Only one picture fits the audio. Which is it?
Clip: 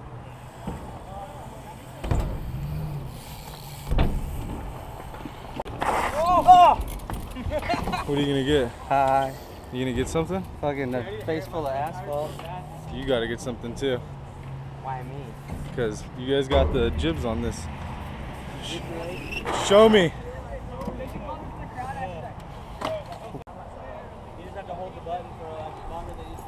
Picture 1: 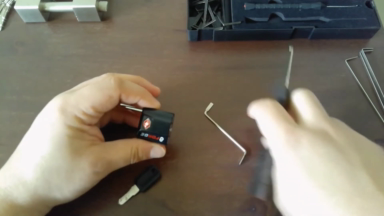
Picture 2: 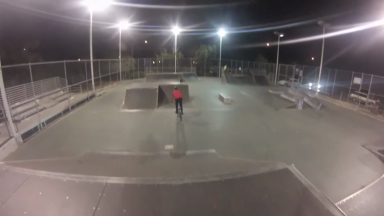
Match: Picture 2